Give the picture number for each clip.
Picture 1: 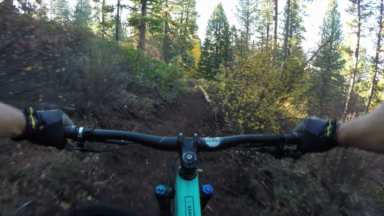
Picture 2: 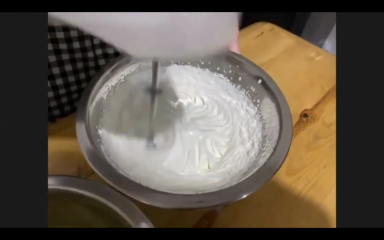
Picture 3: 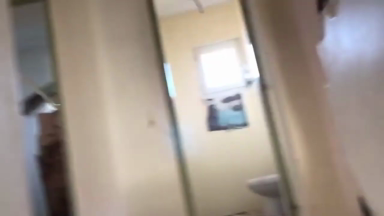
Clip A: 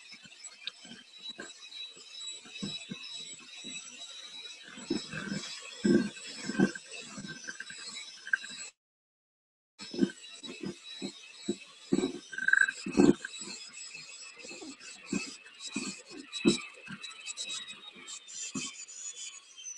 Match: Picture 2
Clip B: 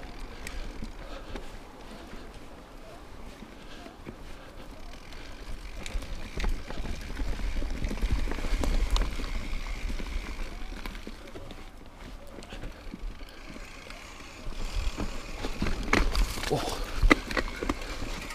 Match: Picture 1